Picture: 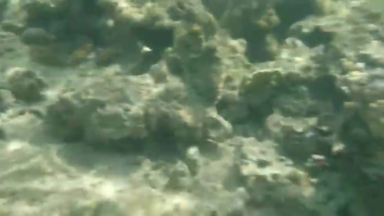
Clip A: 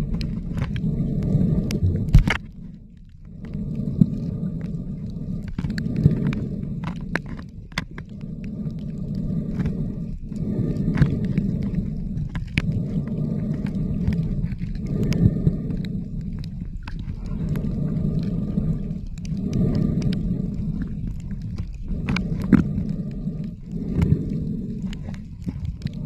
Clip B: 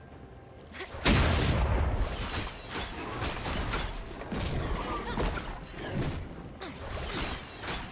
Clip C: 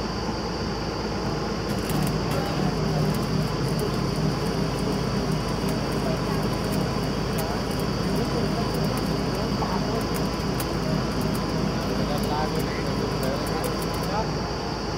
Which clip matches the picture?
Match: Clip A